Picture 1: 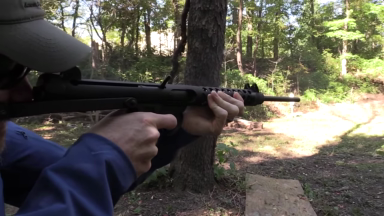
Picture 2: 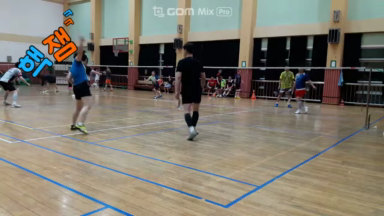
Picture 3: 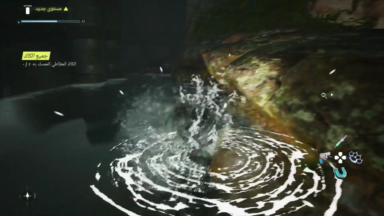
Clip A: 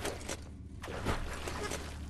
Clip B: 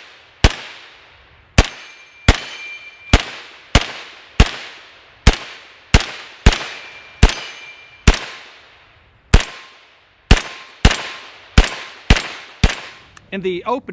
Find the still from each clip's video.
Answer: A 3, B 1